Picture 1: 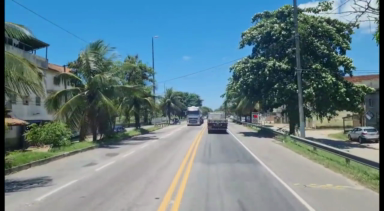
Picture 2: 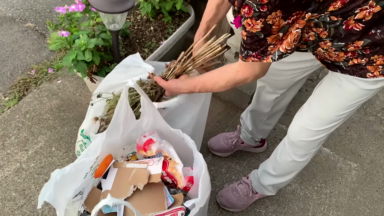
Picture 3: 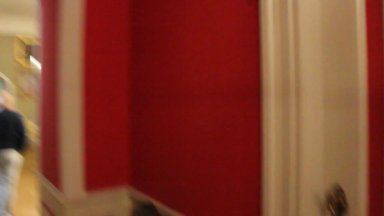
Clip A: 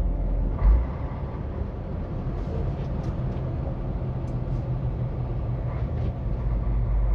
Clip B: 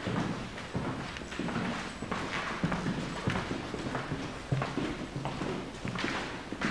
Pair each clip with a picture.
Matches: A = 1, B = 3